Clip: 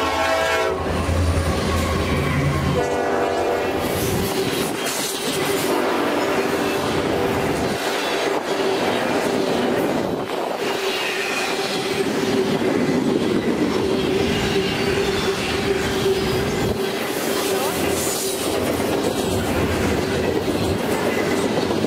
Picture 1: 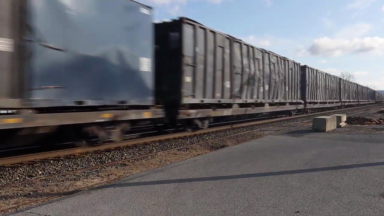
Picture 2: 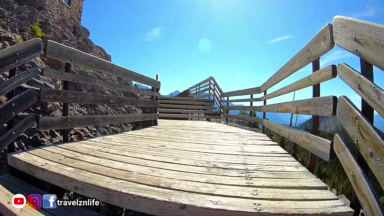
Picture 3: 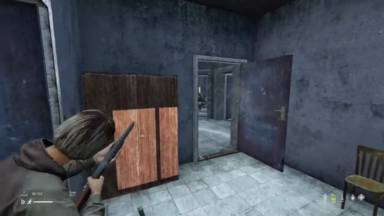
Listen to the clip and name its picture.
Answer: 1